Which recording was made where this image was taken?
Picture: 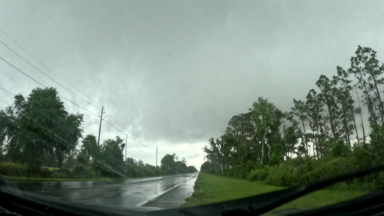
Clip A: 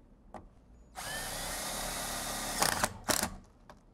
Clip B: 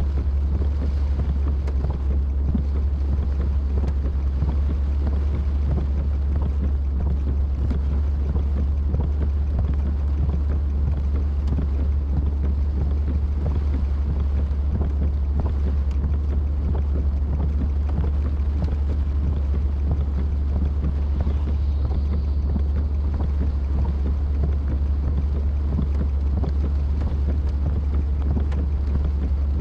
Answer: B